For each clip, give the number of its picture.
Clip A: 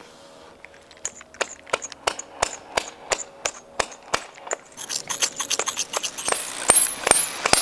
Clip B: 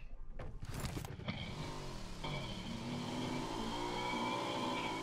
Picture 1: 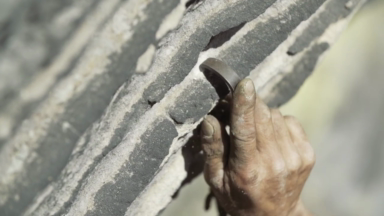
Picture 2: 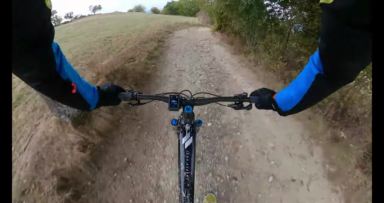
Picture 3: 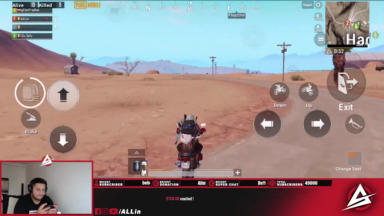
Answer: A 1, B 3